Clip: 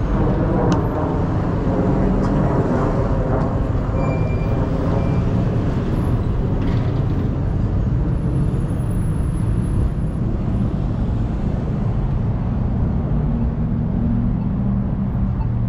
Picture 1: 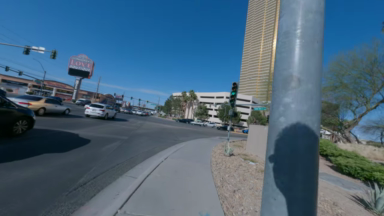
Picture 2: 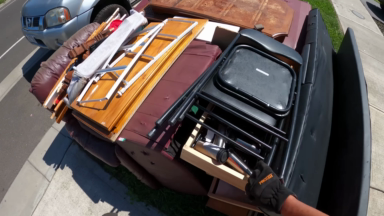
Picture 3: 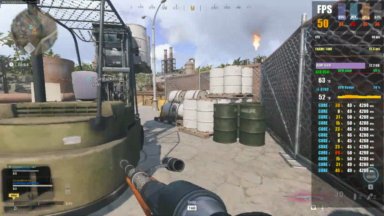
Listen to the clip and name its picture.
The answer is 1